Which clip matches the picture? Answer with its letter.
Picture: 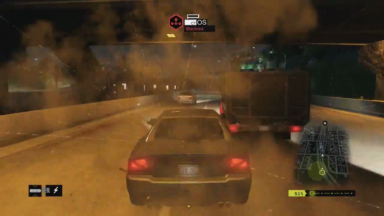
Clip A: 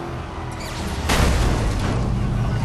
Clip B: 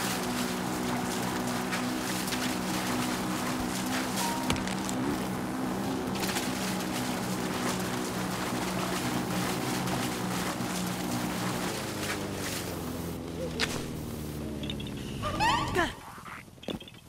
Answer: A